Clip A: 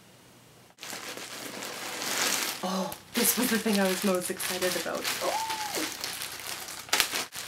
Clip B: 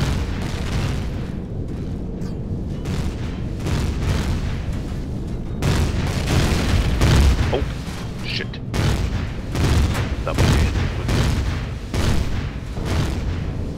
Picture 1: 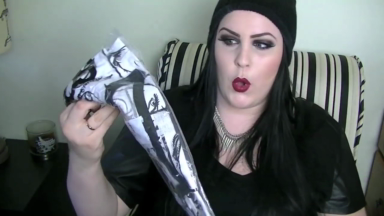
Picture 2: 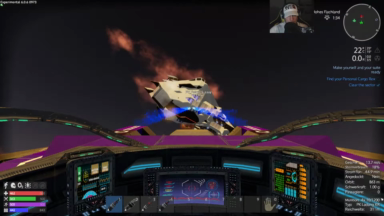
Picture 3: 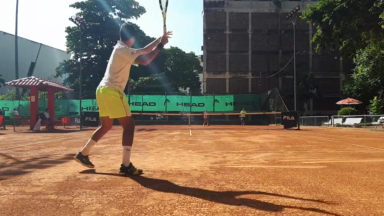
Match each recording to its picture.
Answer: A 1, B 2